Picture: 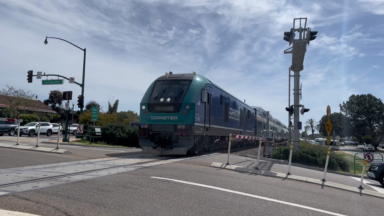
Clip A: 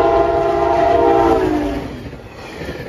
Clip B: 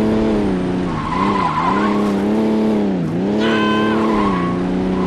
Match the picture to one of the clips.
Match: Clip A